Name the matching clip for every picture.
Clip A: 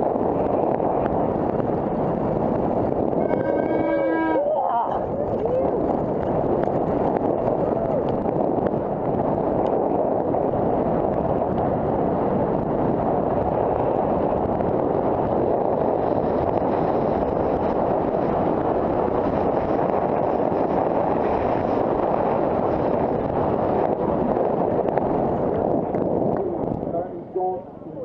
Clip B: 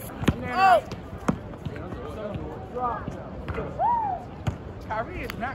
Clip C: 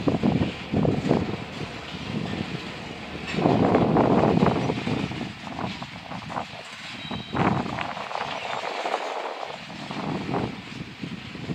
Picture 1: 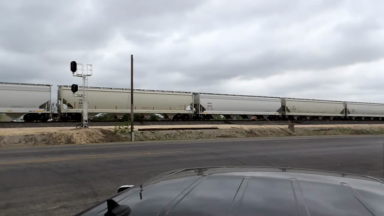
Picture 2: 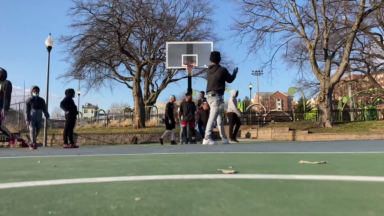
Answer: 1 C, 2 B